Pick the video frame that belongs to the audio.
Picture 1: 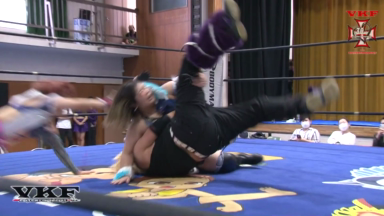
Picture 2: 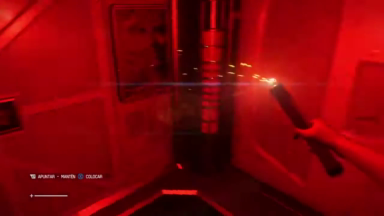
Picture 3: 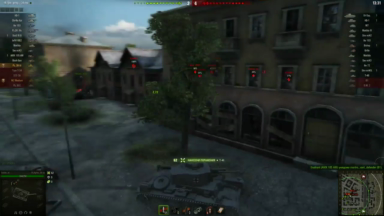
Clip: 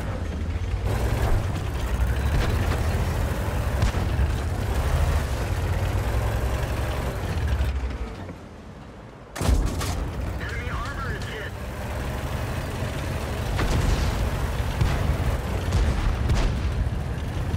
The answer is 3